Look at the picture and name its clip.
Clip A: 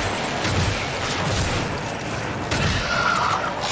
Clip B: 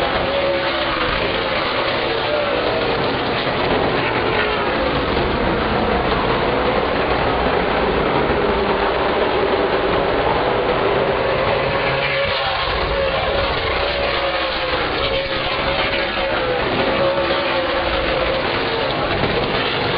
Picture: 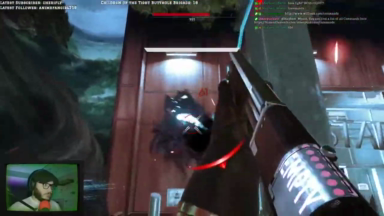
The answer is A